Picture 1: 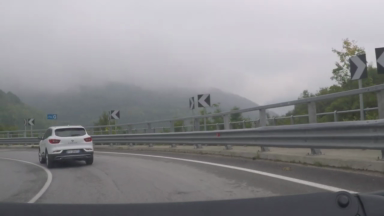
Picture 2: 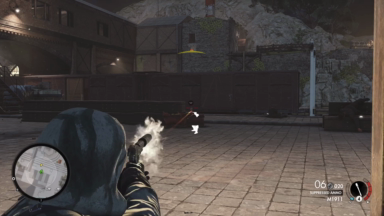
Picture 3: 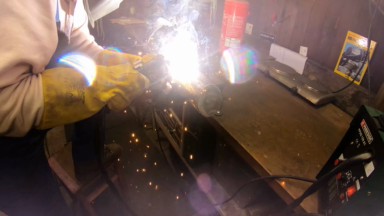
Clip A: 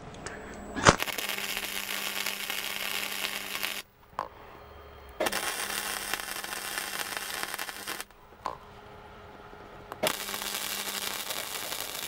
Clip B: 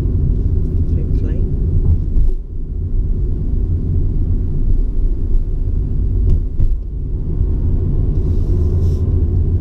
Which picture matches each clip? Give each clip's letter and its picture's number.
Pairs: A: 3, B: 1